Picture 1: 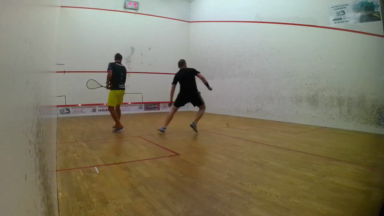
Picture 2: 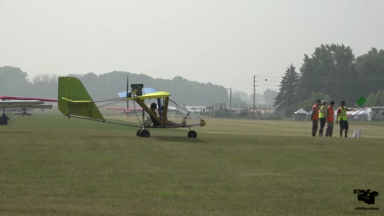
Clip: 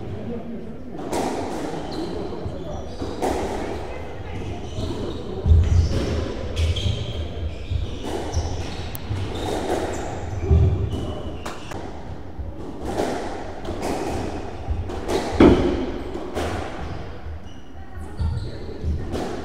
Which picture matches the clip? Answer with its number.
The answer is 1